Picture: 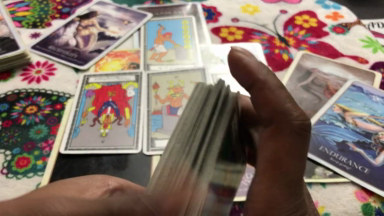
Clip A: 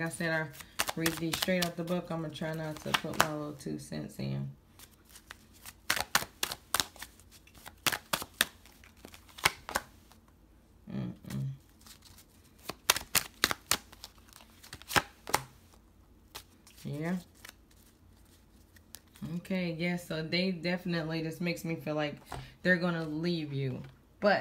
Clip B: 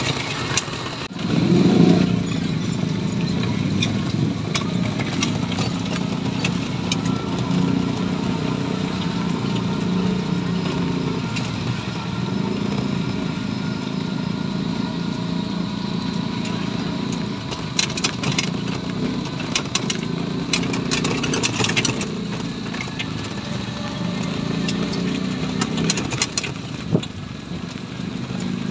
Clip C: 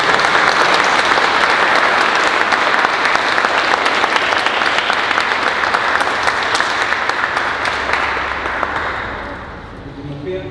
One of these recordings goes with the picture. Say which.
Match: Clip A